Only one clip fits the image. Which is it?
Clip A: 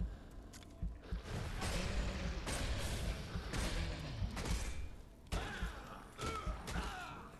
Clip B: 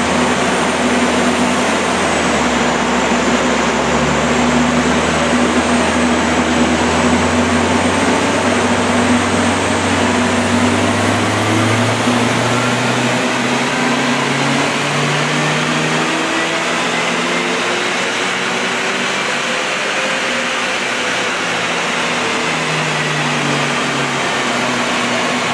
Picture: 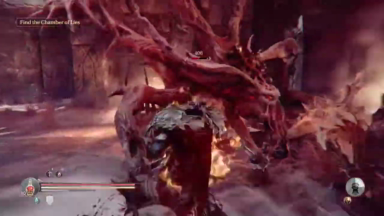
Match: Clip A